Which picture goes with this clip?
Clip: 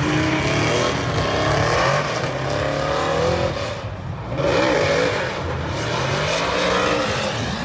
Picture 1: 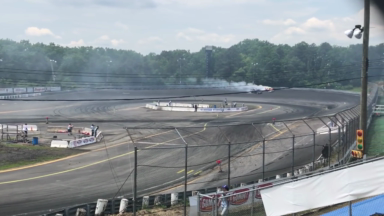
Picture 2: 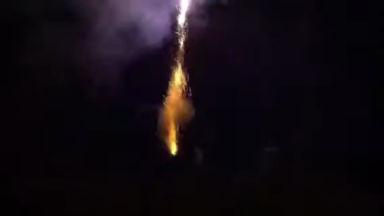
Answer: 1